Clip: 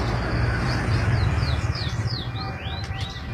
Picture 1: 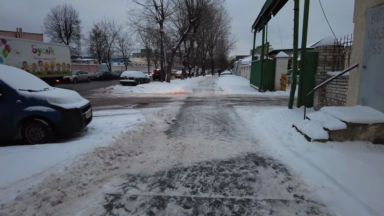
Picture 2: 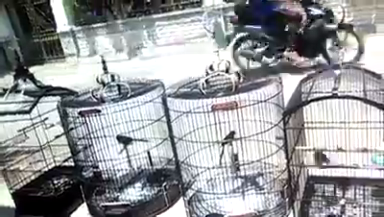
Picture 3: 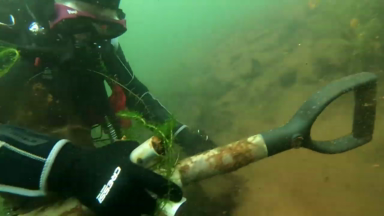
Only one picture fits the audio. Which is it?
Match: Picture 2